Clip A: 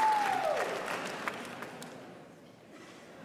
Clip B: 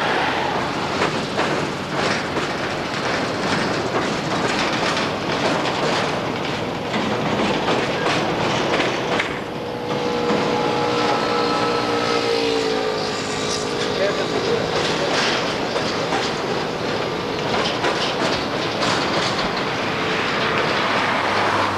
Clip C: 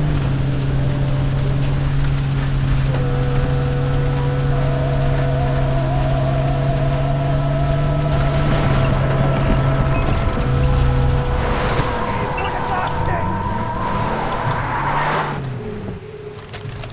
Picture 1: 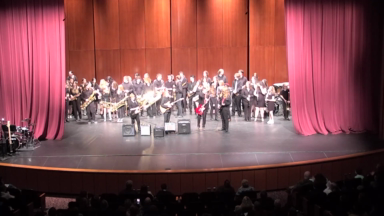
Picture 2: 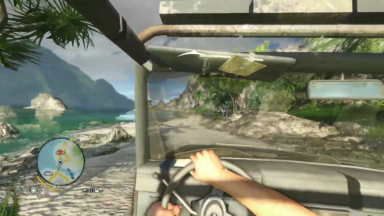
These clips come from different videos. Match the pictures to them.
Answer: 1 A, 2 C